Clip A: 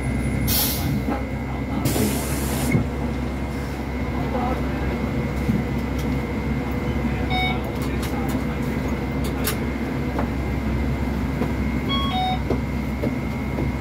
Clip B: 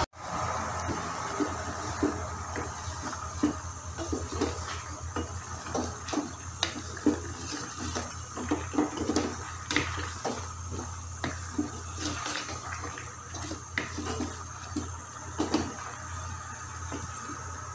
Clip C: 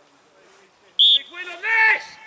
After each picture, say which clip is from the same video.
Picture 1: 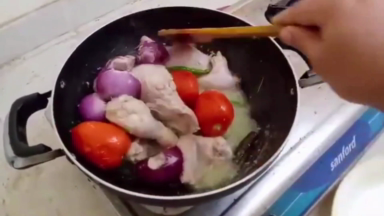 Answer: B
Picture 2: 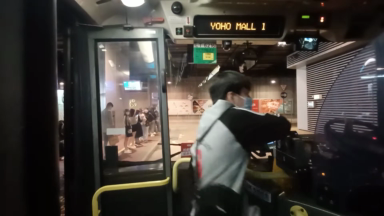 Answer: A